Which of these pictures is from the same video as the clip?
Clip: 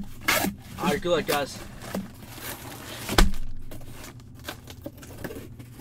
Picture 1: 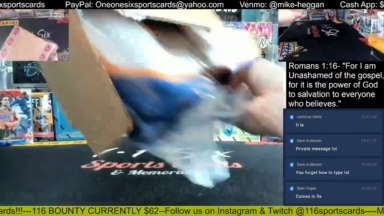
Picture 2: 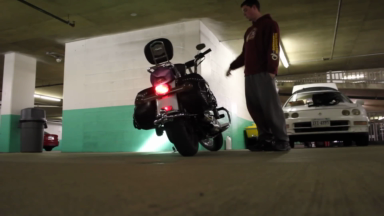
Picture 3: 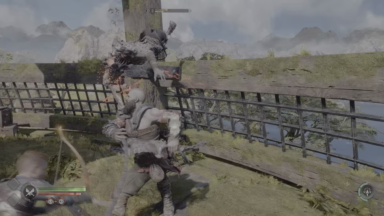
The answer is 1